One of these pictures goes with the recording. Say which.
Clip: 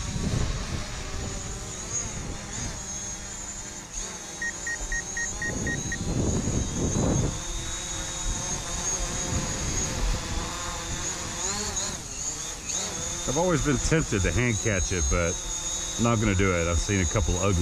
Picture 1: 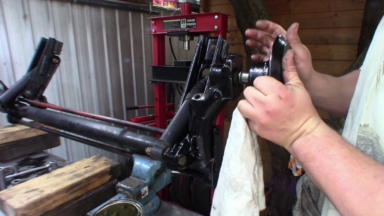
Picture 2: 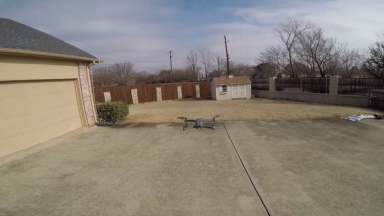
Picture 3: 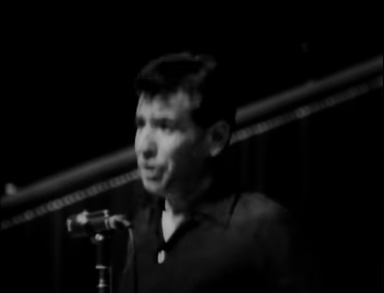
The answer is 2